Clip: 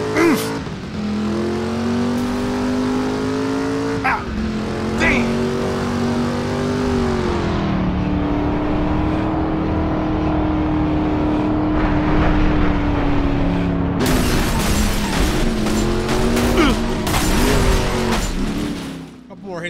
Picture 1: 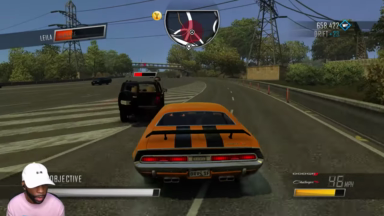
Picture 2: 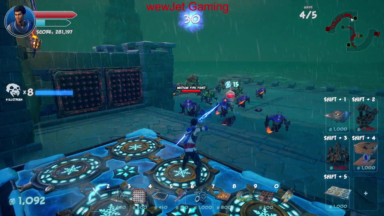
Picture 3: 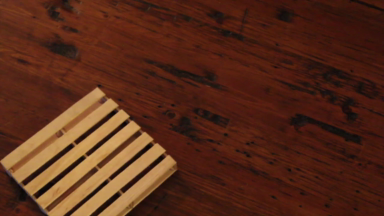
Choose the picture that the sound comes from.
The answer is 1